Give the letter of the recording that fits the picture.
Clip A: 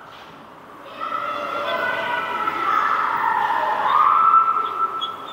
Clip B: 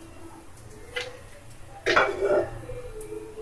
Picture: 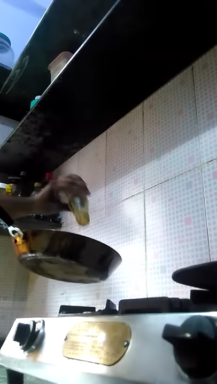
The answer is B